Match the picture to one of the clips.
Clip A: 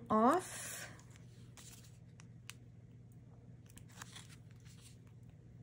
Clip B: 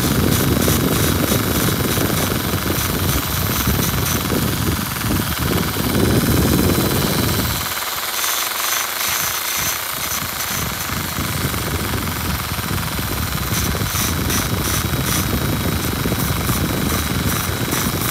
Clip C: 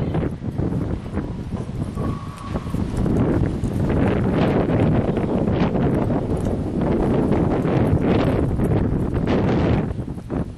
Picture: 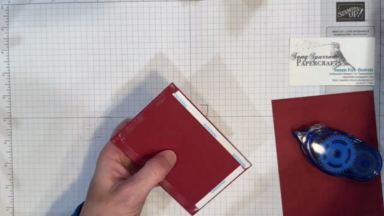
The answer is A